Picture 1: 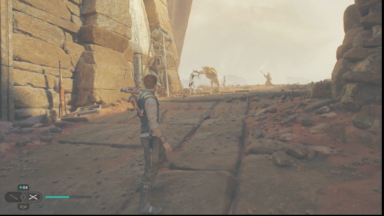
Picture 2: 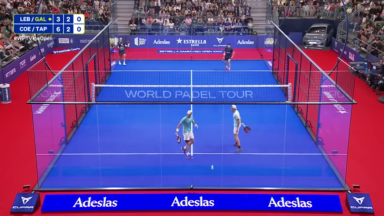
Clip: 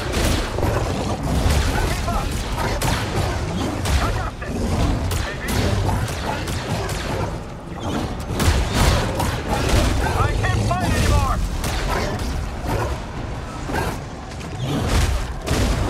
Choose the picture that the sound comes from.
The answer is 1